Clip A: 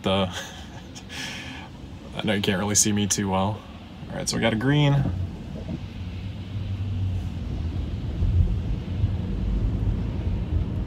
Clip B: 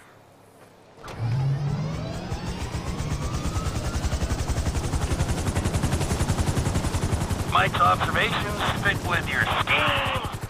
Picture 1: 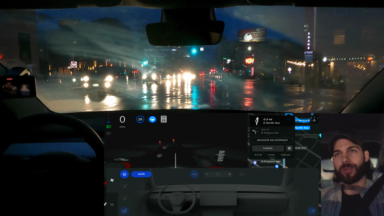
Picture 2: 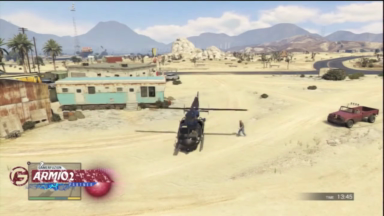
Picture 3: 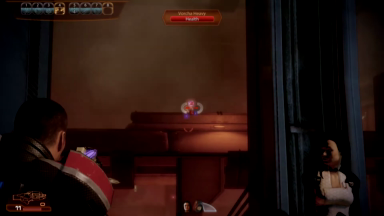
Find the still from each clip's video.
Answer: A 1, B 2